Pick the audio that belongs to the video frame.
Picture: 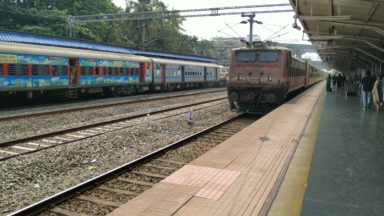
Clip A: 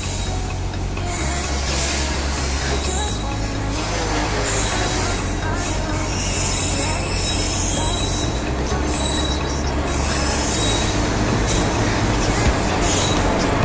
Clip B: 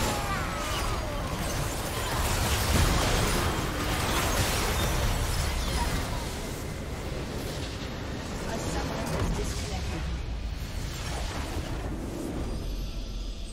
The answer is A